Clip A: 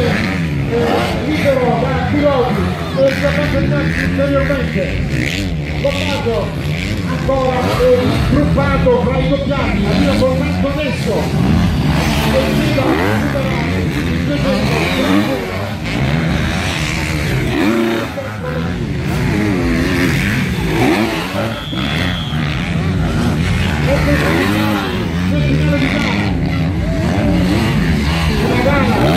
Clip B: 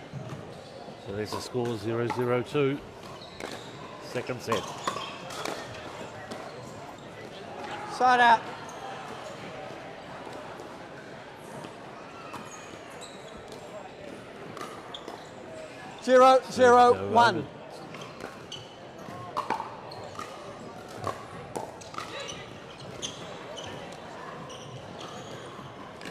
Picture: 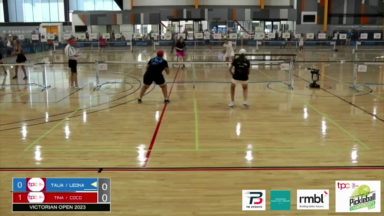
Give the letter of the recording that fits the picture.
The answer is B